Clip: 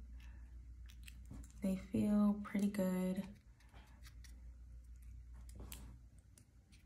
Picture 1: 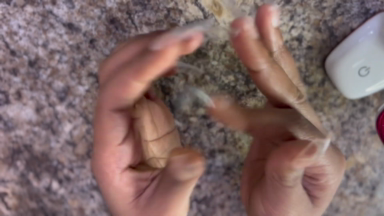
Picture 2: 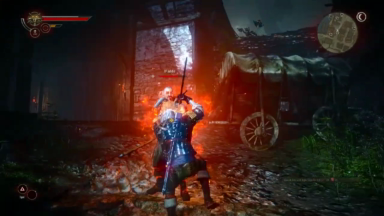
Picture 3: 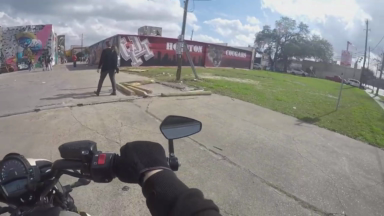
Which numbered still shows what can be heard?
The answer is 1